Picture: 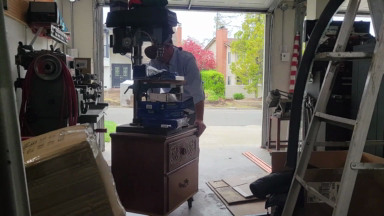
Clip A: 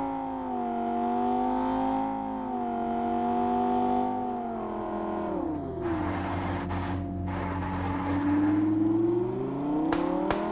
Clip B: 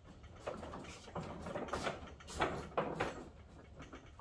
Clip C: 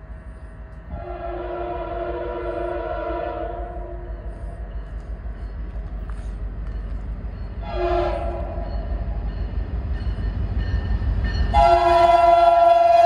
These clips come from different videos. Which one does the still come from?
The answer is B